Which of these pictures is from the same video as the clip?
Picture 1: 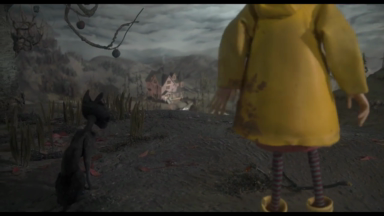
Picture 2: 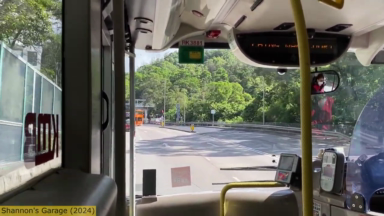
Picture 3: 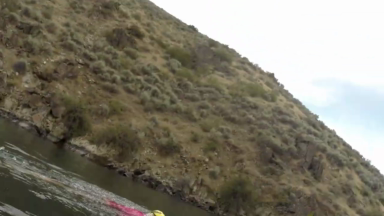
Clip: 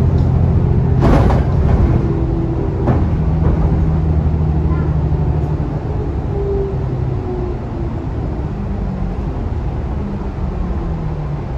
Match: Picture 2